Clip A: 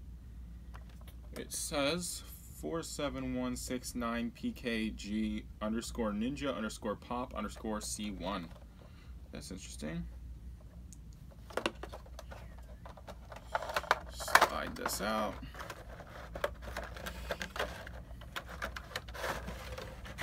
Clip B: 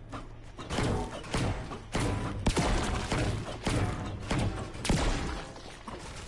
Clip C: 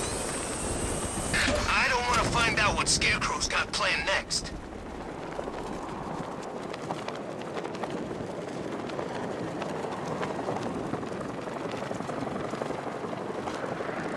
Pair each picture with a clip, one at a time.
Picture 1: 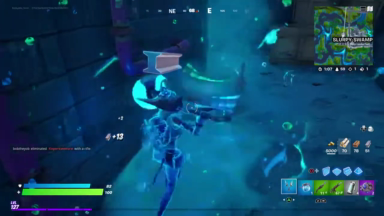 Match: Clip B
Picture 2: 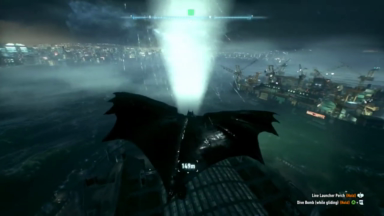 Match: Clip C